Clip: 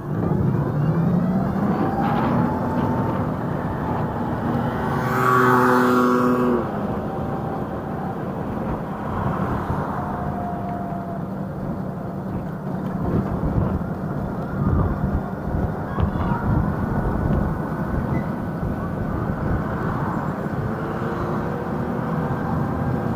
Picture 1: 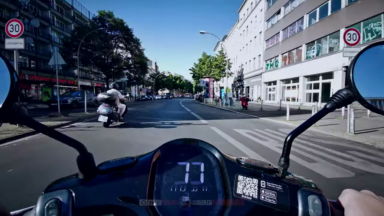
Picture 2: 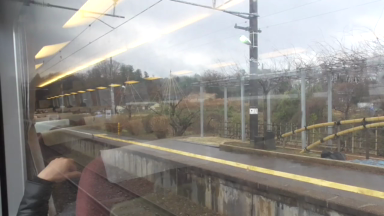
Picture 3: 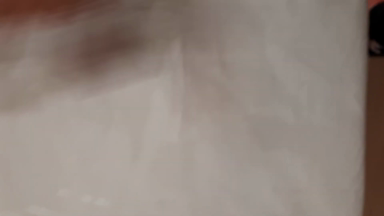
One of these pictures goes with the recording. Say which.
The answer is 1